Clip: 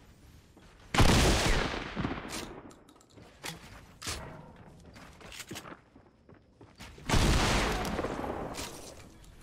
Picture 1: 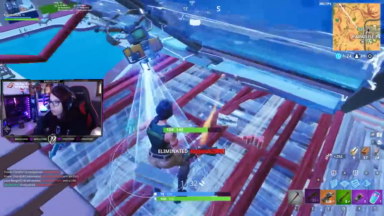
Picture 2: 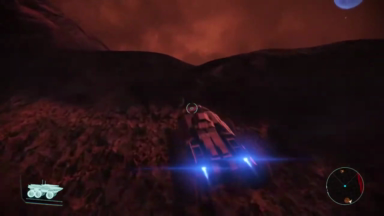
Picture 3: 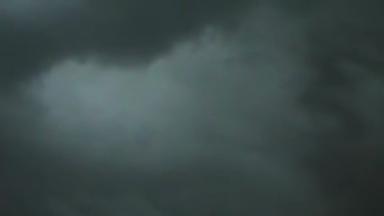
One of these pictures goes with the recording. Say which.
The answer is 1